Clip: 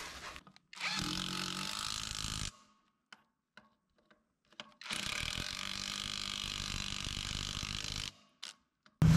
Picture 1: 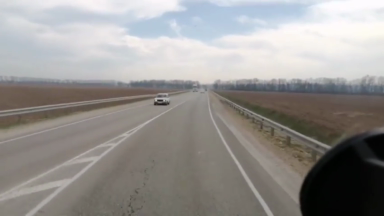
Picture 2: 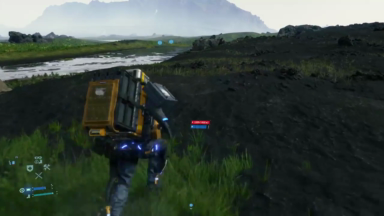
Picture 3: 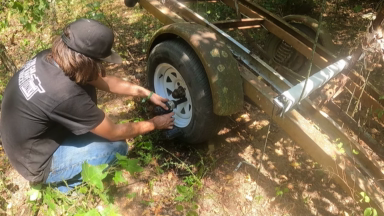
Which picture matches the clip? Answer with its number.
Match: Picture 3